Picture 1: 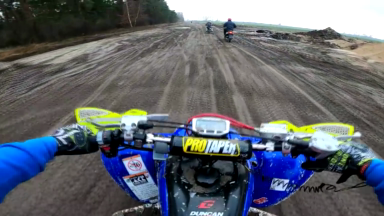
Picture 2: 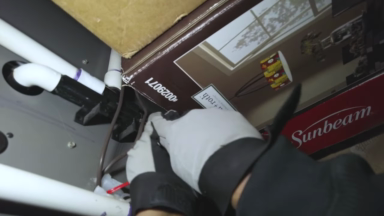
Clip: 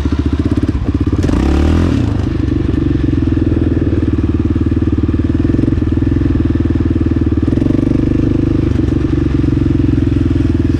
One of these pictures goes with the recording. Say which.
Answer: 1